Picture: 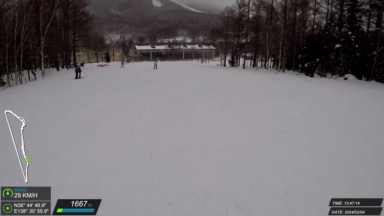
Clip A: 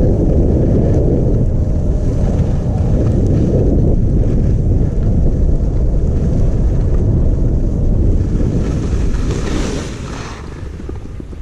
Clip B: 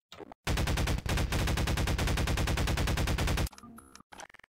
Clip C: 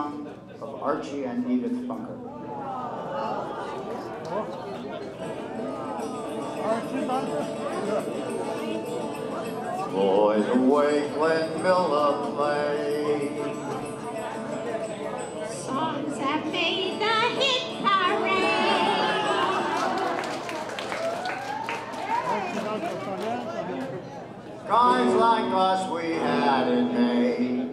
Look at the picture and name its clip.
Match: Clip A